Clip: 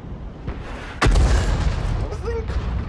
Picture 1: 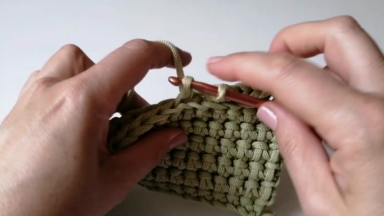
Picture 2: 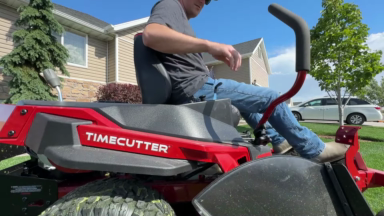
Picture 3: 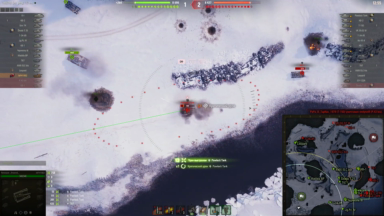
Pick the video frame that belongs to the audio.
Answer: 3